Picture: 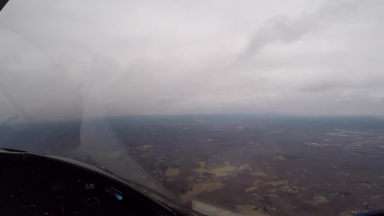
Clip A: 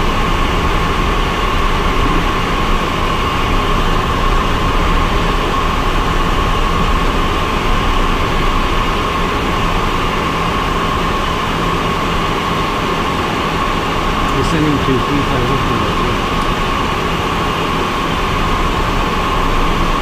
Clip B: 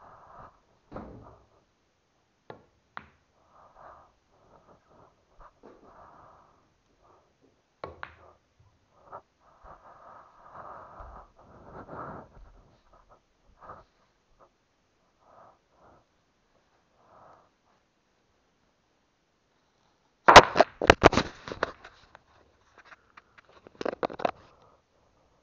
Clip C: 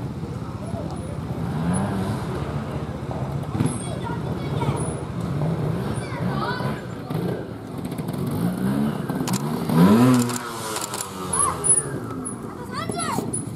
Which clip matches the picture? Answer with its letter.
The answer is A